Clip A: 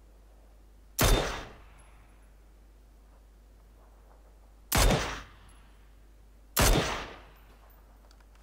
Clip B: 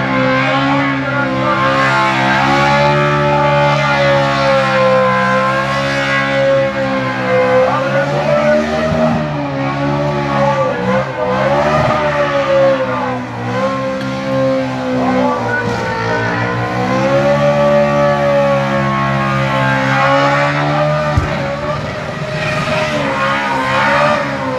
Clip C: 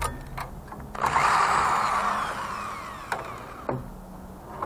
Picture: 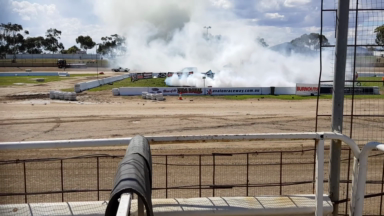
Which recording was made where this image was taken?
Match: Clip B